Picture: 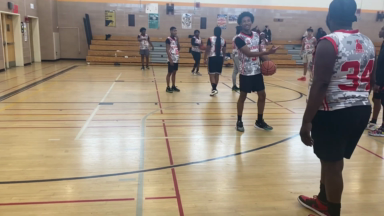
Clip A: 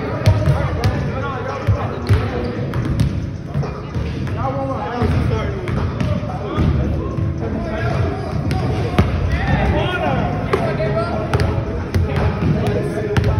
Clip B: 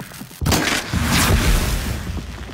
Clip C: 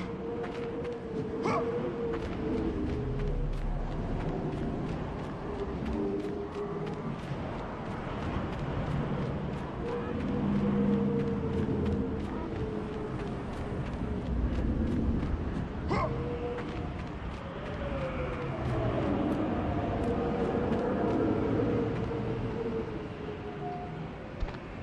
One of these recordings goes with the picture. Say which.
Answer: A